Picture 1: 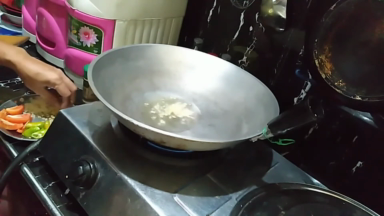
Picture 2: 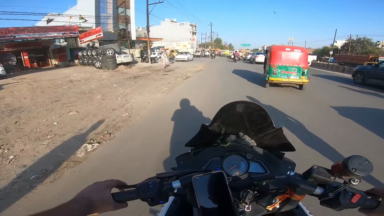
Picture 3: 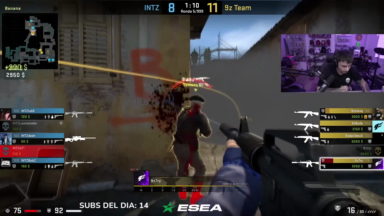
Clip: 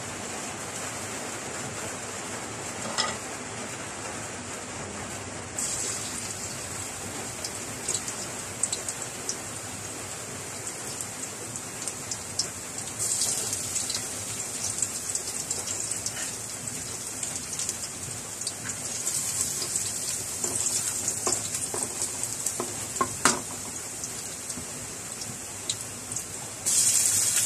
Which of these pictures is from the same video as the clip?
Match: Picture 1